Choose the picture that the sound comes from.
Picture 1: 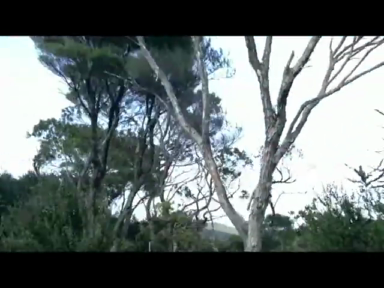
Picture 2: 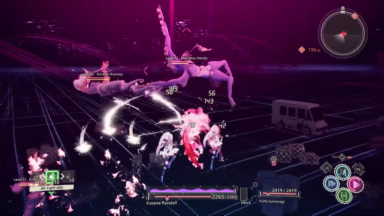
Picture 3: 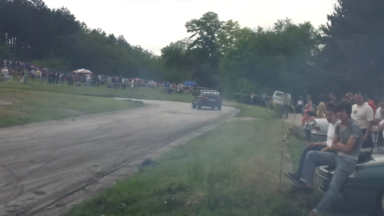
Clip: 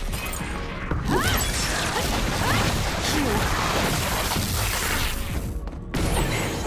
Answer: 2